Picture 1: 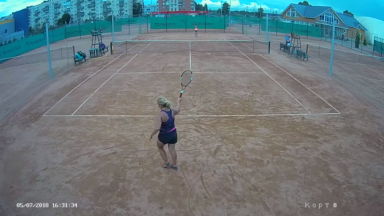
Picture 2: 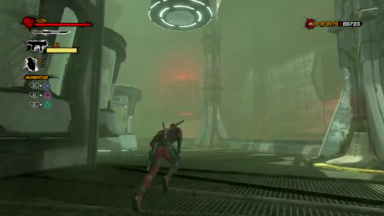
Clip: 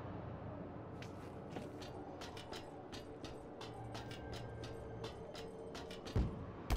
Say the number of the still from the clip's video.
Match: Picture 2